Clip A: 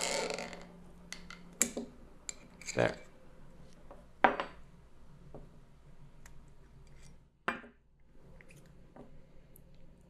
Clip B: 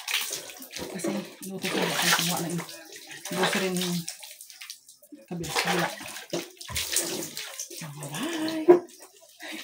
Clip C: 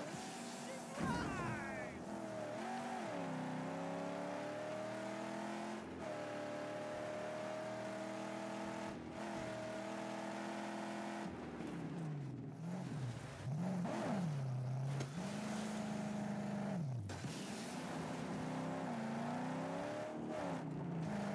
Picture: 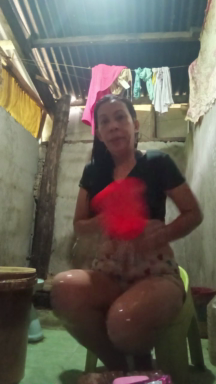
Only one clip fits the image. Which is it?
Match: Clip B